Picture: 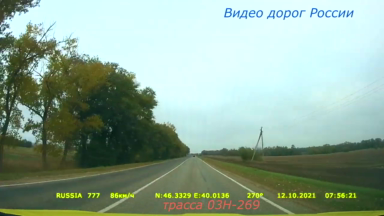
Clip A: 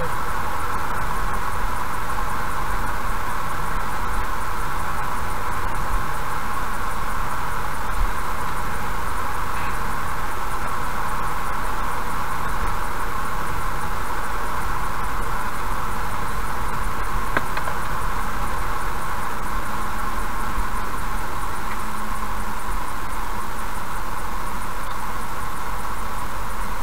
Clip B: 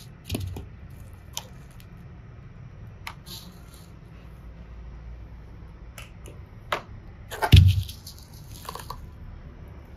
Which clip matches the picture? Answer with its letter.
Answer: A